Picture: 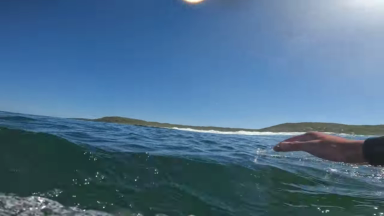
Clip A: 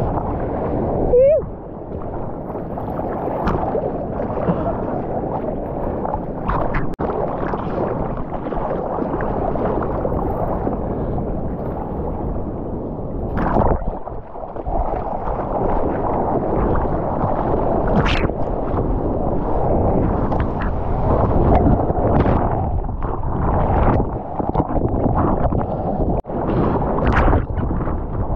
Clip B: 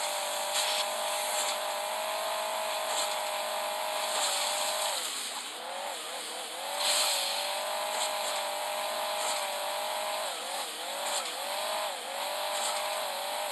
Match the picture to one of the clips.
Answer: A